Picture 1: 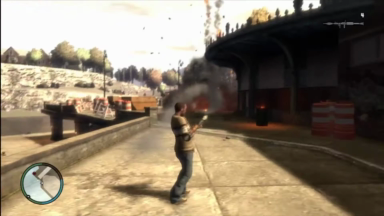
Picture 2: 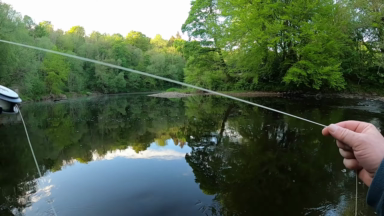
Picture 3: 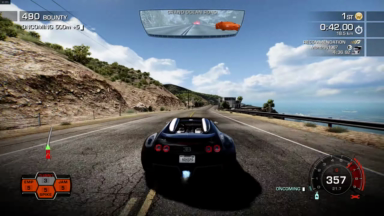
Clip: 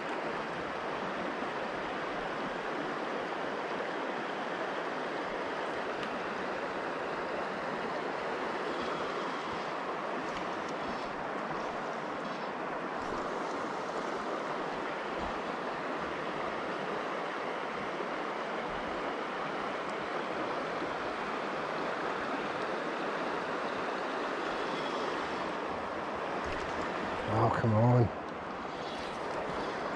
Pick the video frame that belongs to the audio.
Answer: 2